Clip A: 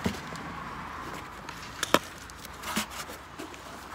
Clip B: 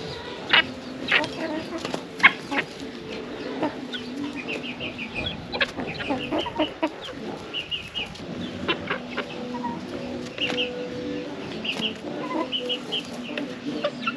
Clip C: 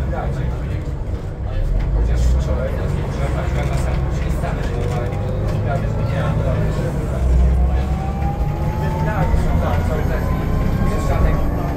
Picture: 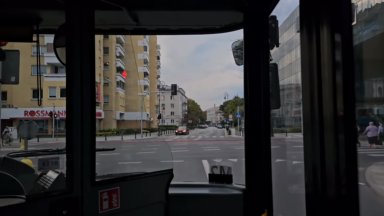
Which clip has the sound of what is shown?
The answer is C